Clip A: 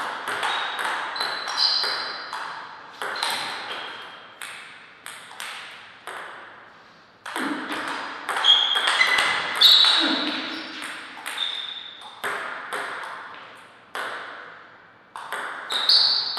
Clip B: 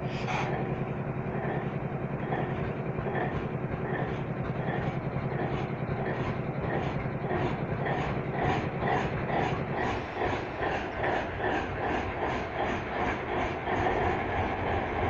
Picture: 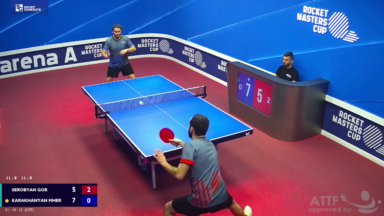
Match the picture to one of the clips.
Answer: A